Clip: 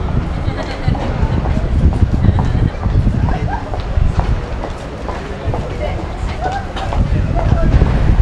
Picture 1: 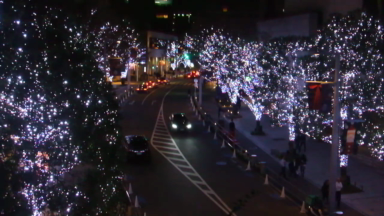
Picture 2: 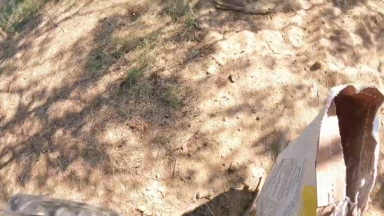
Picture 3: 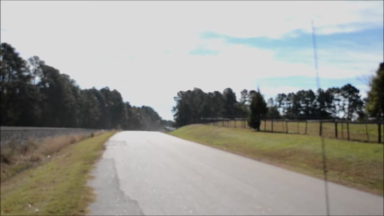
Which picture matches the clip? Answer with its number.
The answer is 1